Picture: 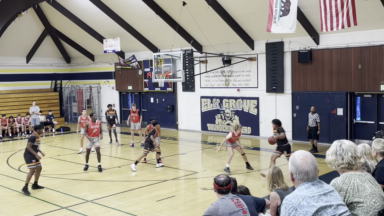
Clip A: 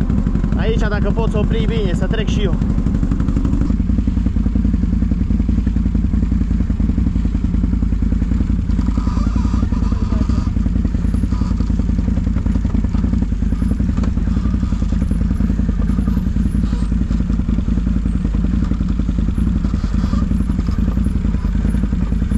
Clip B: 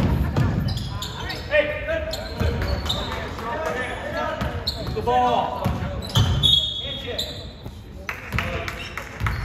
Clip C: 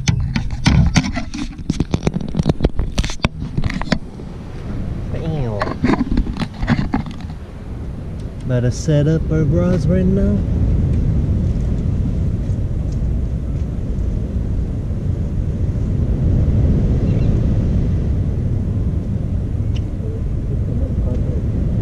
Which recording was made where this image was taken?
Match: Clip B